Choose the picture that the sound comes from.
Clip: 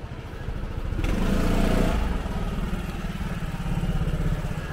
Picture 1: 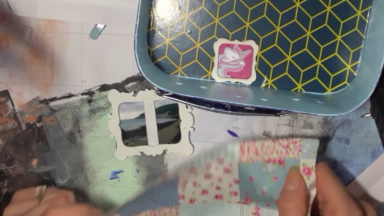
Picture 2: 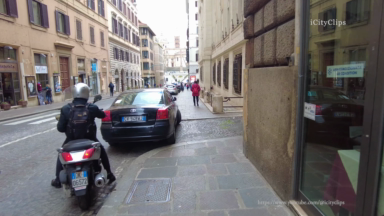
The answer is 2